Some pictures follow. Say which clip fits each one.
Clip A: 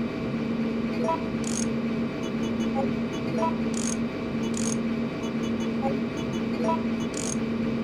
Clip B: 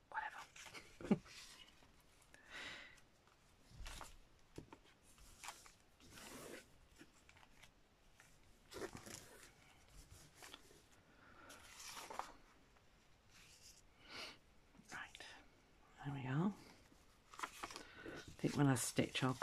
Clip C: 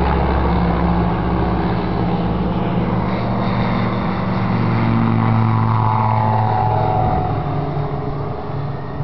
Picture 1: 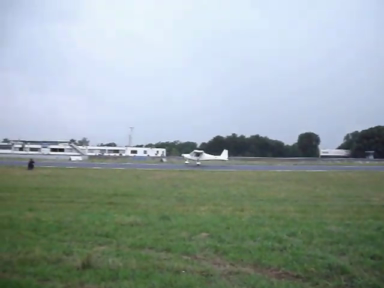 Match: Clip C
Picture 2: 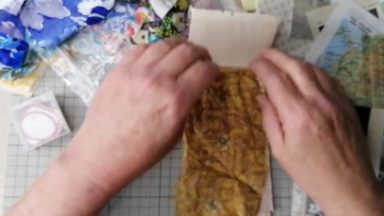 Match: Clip B